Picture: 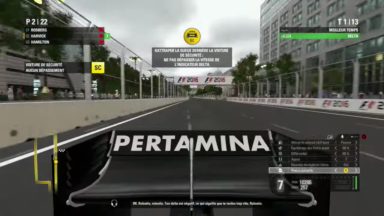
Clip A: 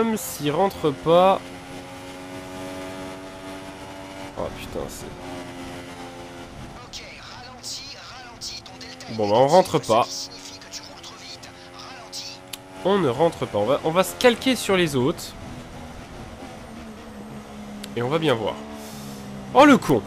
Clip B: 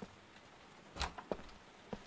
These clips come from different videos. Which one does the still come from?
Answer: A